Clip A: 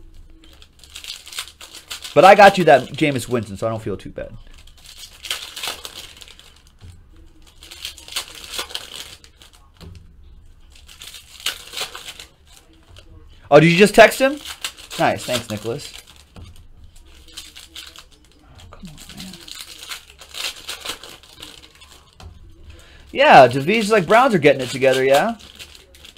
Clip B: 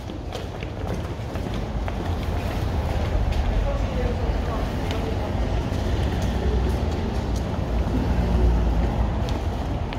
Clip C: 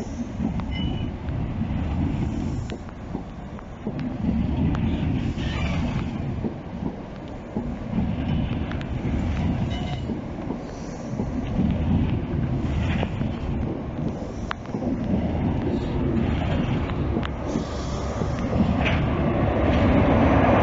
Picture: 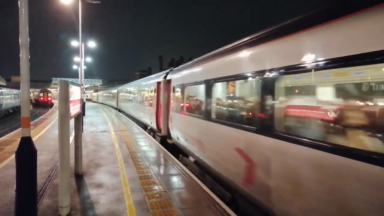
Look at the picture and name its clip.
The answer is C